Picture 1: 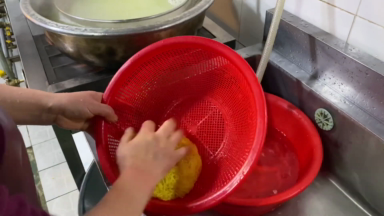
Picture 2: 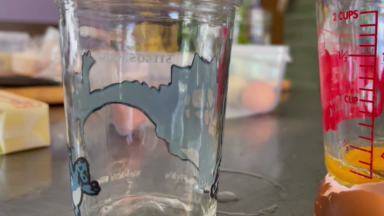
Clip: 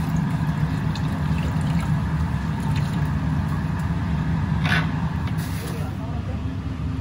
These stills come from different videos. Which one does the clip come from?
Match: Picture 1